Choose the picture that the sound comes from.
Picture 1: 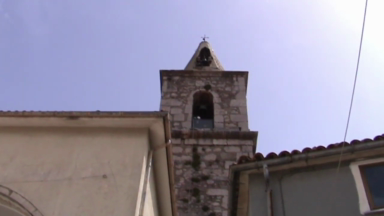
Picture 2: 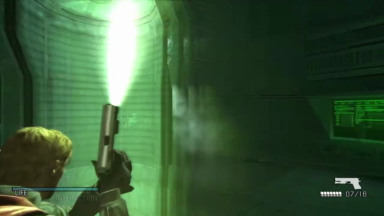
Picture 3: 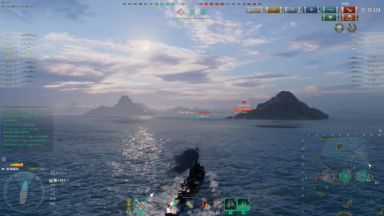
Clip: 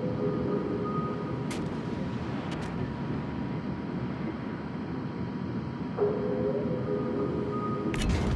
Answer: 3